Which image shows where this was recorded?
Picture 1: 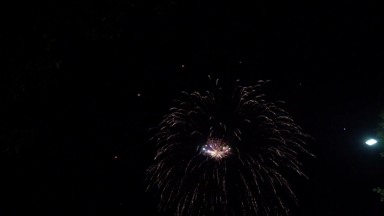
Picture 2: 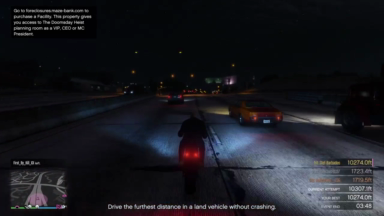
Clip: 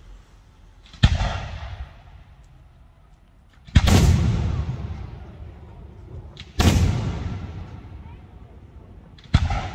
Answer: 1